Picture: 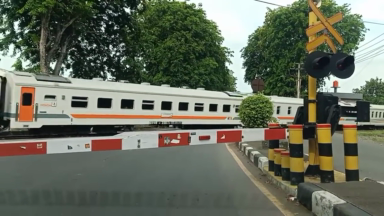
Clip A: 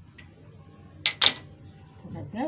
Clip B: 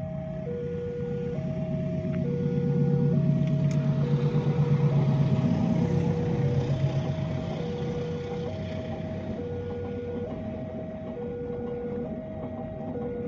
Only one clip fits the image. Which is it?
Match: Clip B